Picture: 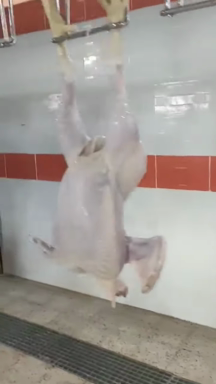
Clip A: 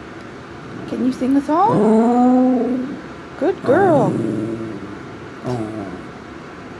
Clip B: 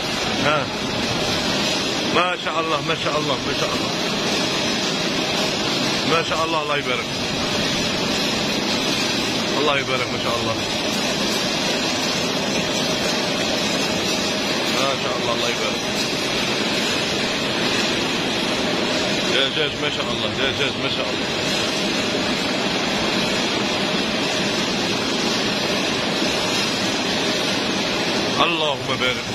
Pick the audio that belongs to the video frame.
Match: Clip B